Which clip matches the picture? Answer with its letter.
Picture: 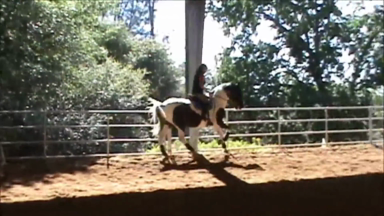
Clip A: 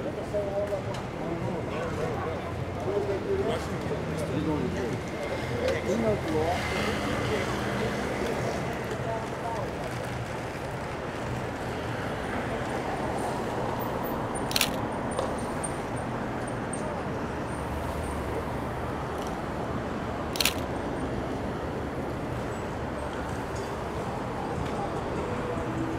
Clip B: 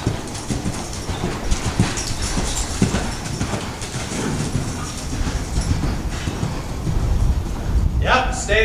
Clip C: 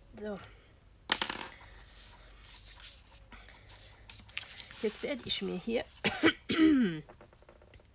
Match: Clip B